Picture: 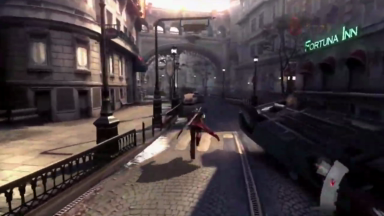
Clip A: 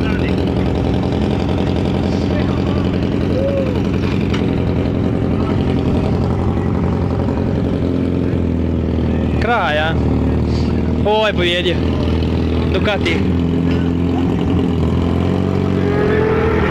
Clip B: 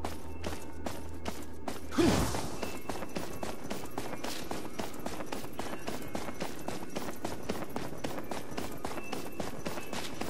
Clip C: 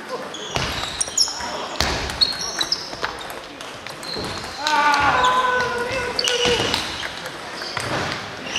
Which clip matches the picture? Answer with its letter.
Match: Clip B